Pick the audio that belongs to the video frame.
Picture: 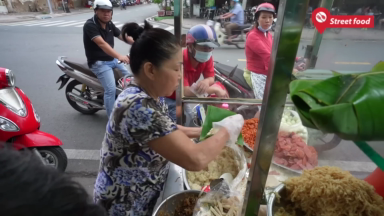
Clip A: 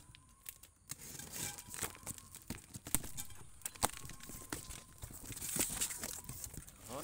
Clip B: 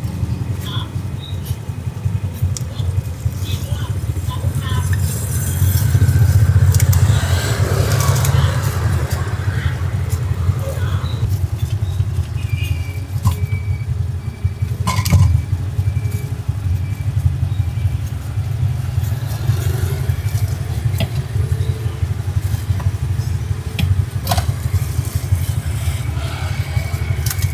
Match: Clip B